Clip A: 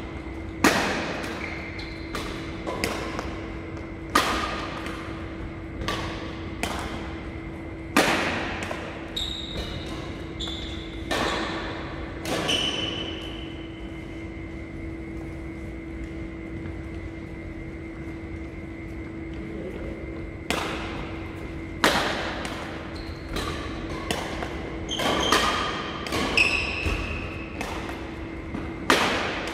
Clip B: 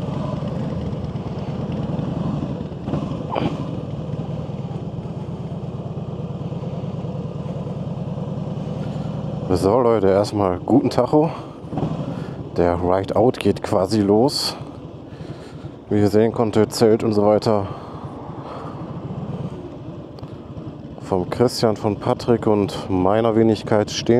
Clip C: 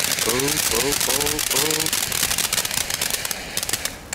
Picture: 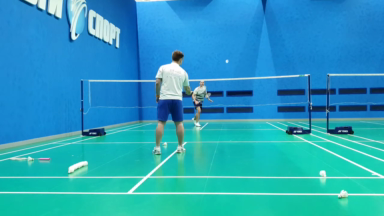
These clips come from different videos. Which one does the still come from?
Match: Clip A